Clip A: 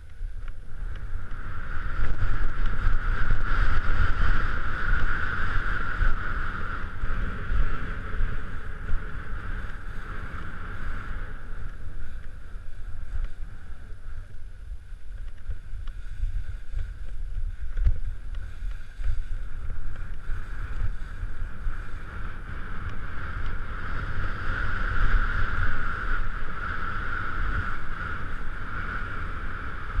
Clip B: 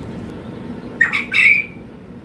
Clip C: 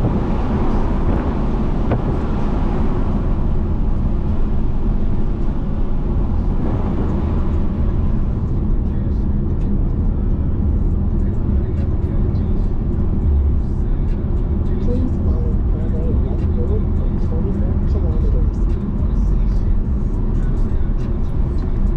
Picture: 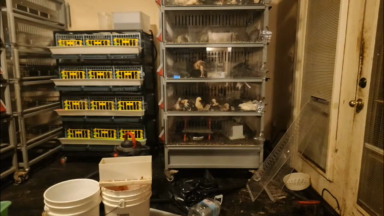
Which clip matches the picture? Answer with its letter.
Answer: B